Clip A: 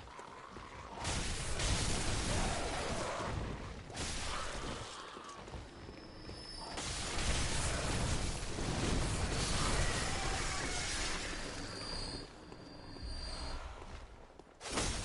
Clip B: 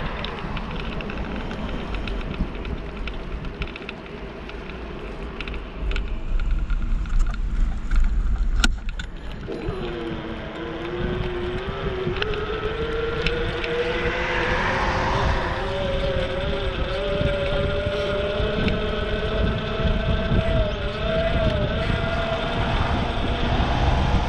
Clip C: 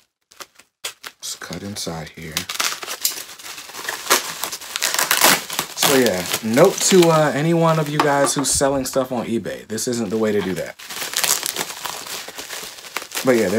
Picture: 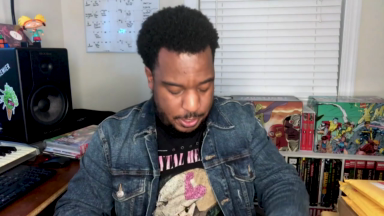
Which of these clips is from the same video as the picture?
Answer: C